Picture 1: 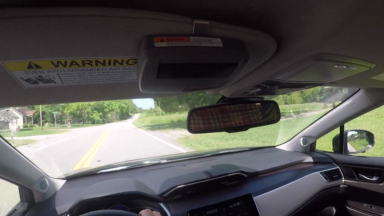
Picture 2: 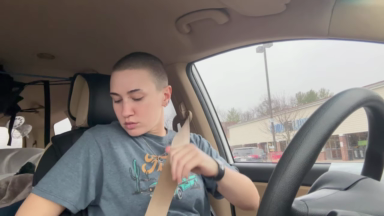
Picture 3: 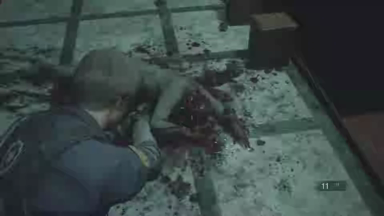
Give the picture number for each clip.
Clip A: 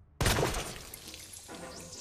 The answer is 3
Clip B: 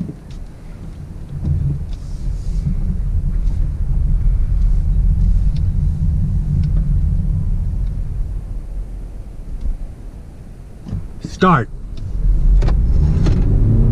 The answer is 1